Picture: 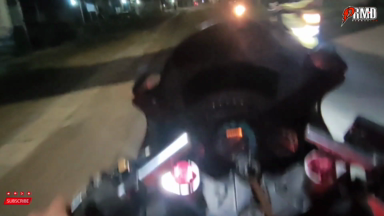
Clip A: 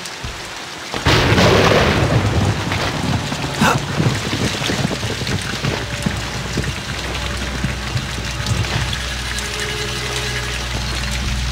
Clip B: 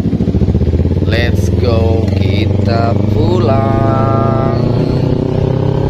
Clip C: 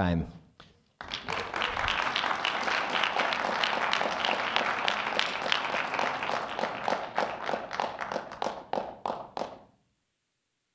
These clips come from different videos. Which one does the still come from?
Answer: B